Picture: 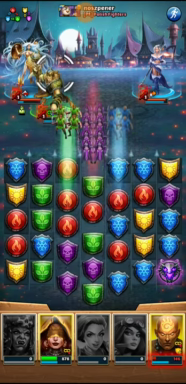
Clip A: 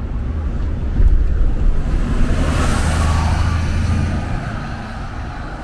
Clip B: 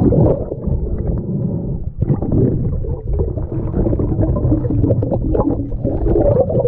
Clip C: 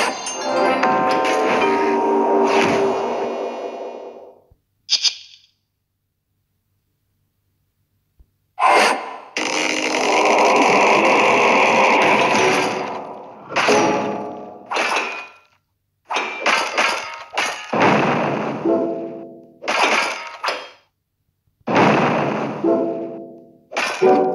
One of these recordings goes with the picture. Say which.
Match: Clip C